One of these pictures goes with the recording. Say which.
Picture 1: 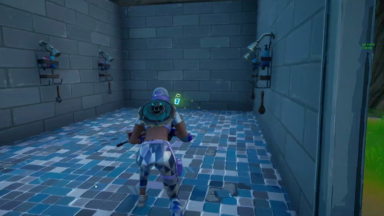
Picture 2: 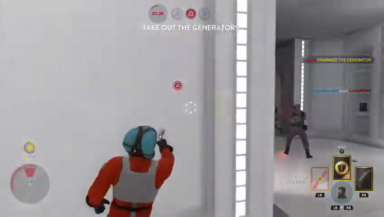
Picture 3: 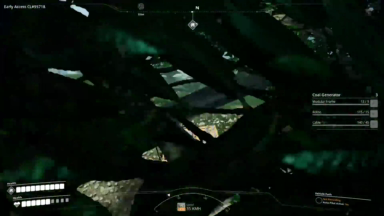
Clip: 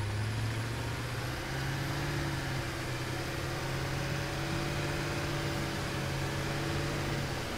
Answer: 3